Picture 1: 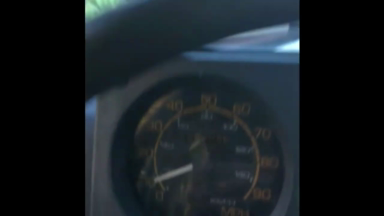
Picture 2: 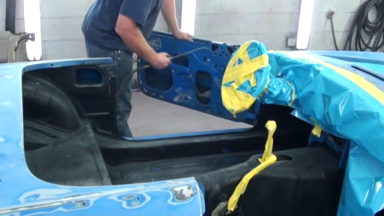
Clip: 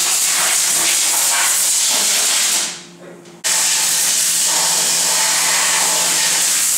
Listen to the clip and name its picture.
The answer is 2